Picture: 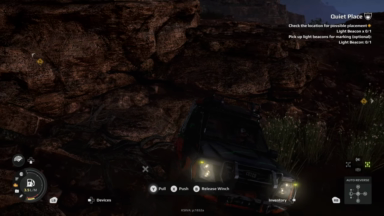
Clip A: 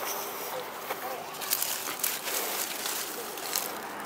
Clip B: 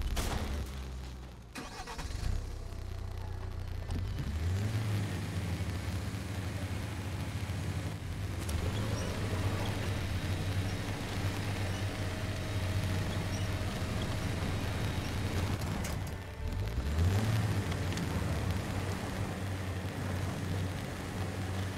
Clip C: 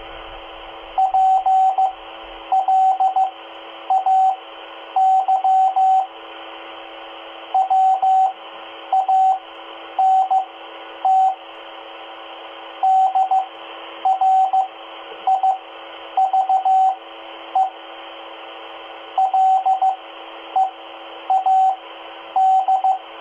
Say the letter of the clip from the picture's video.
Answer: B